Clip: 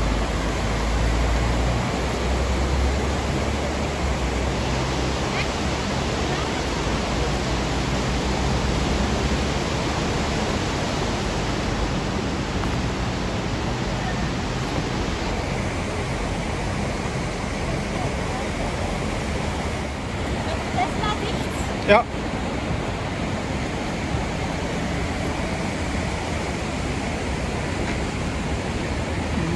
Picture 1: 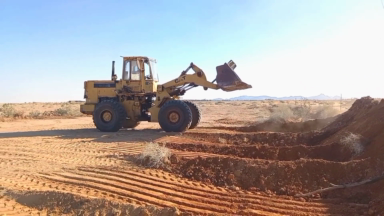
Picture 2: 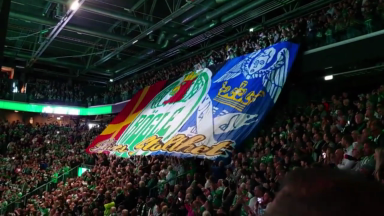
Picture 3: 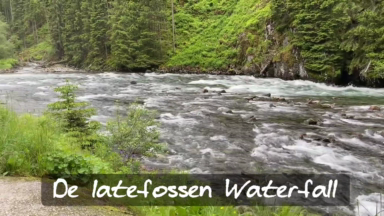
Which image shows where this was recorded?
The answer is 3